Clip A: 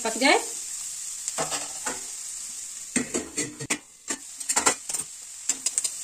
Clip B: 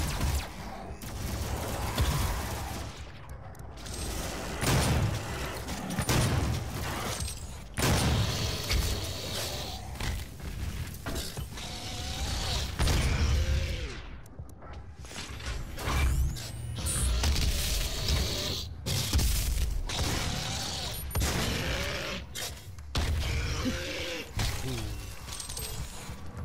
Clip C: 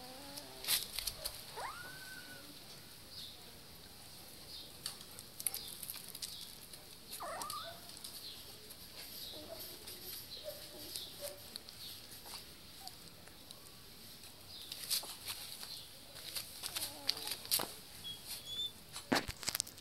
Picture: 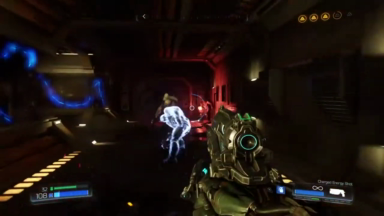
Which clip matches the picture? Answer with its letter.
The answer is B